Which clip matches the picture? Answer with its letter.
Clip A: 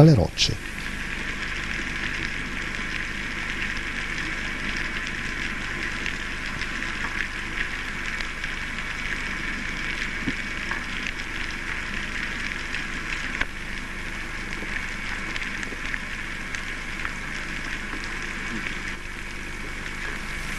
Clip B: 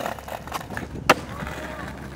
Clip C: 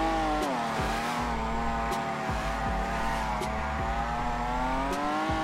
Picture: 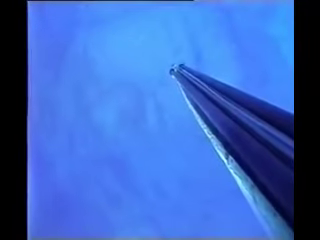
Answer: A